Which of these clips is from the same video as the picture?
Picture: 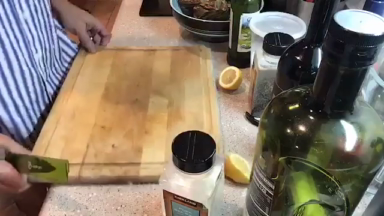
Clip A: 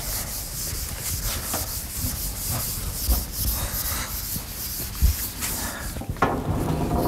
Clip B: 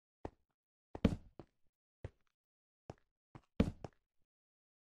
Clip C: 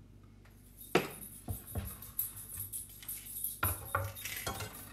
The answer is C